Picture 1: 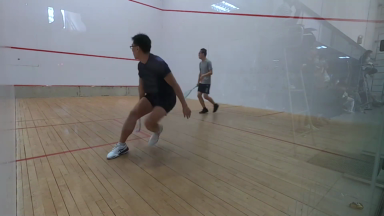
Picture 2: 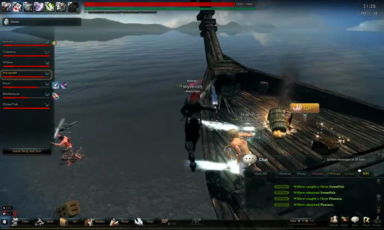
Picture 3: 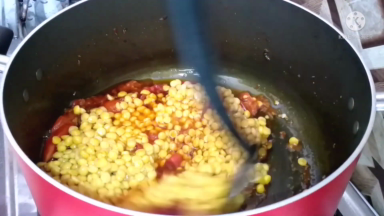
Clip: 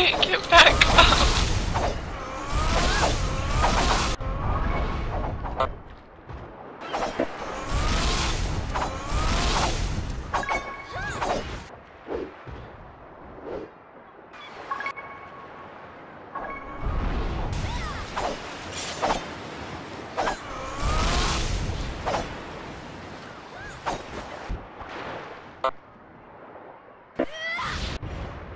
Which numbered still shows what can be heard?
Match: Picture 2